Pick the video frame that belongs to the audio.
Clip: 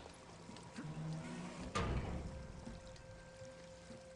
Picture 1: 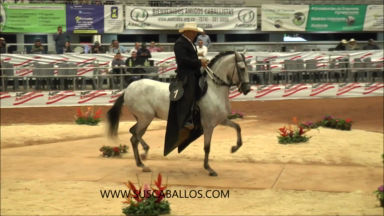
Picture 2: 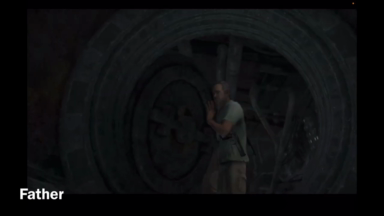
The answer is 2